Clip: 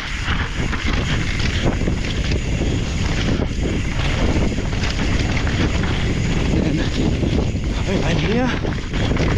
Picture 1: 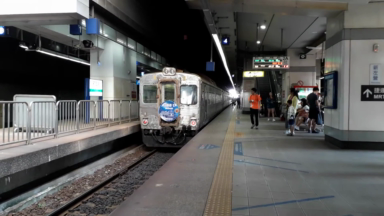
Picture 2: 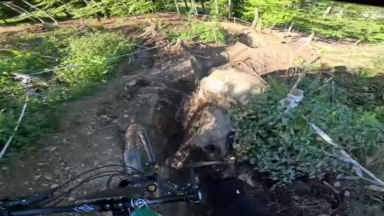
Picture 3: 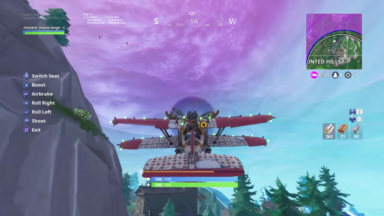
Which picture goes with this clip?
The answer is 2